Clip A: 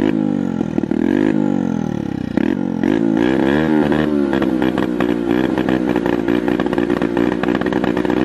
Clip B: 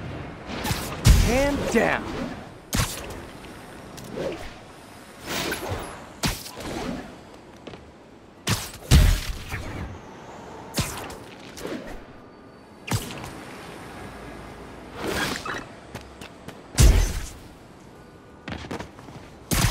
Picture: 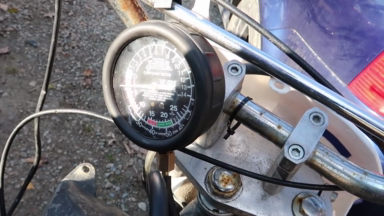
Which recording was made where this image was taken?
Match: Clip A